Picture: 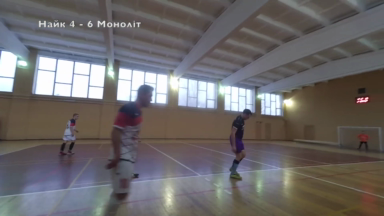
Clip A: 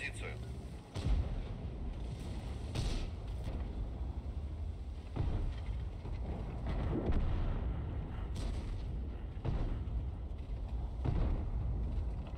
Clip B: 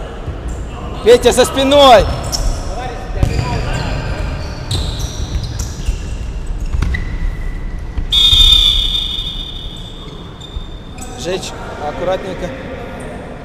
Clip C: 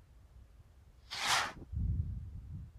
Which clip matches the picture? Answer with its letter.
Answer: B